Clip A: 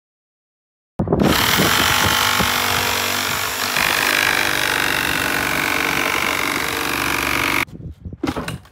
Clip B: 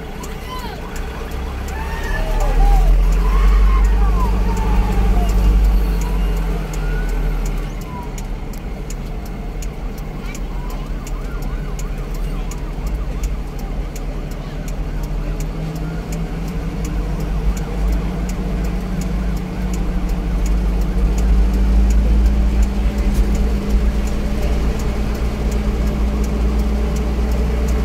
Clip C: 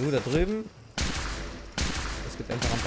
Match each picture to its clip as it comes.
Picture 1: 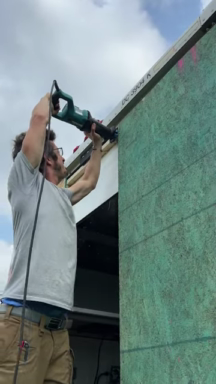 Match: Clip A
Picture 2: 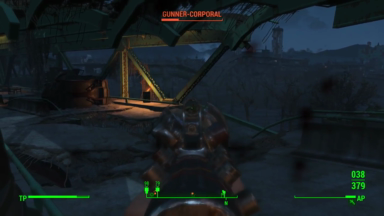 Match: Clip C